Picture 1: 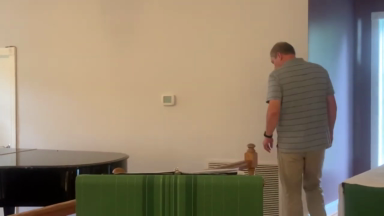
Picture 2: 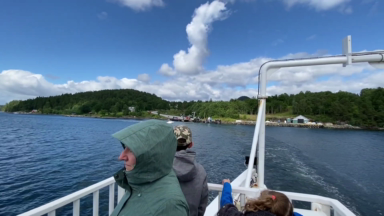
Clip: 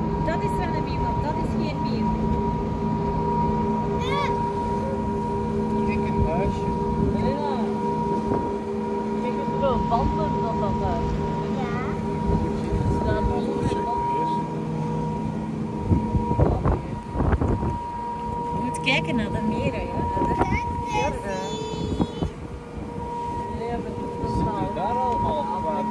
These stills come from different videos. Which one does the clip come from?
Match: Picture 2